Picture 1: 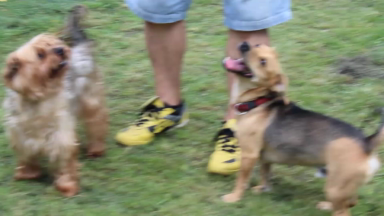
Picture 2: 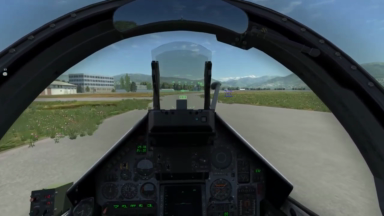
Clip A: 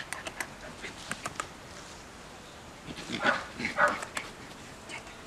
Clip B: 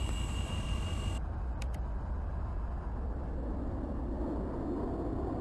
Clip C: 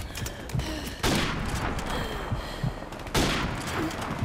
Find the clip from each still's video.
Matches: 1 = A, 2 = B